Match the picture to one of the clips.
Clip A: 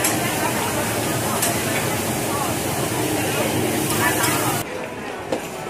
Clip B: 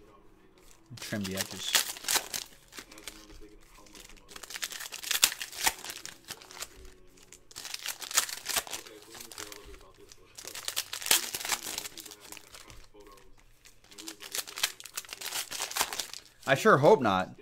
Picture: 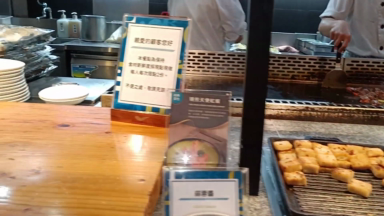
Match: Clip A